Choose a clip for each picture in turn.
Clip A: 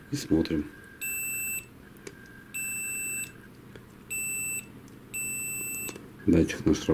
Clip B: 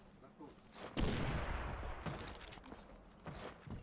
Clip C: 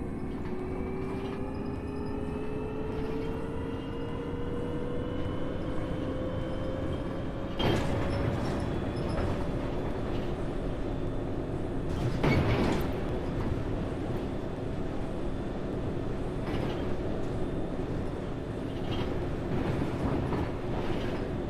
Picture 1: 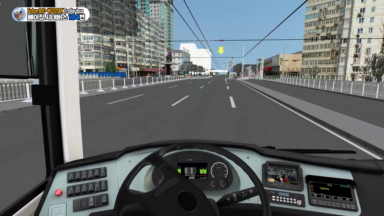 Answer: C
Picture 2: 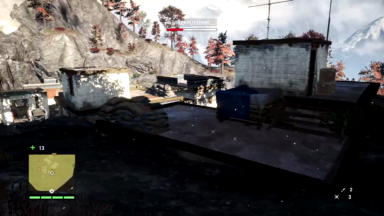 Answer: B